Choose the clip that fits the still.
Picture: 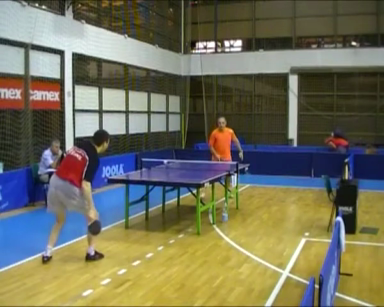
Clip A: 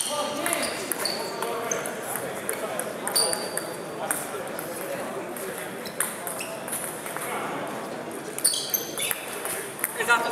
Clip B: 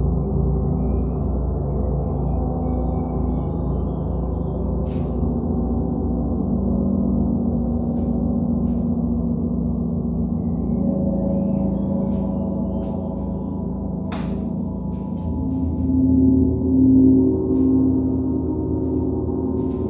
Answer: A